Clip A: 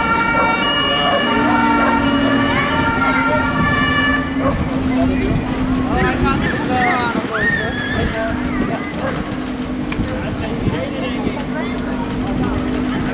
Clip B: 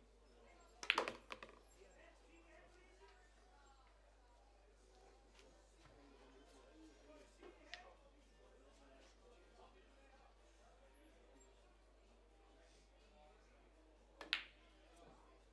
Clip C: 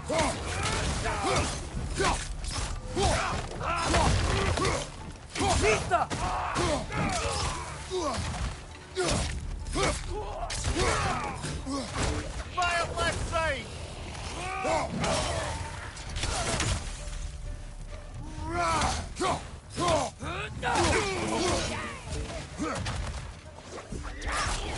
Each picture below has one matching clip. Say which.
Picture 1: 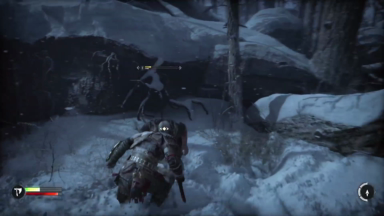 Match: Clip C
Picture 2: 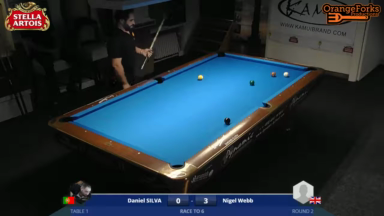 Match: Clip B